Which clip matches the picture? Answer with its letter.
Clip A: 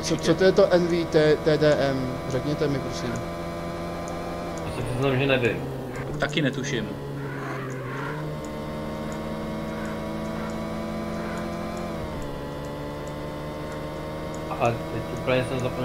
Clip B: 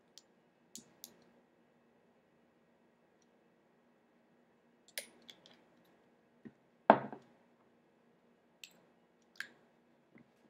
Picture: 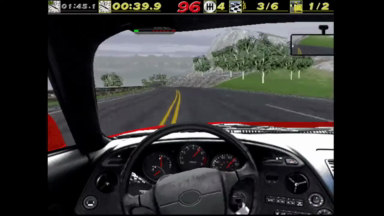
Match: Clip A